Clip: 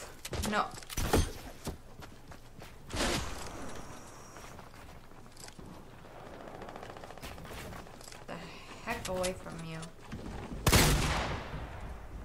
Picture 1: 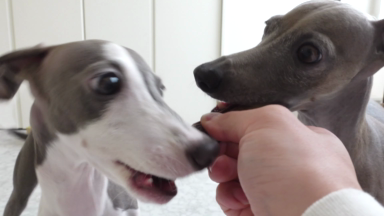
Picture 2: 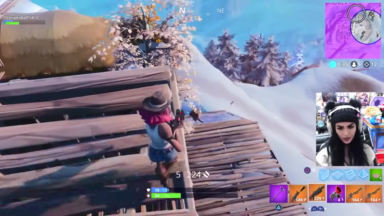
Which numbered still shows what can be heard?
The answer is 2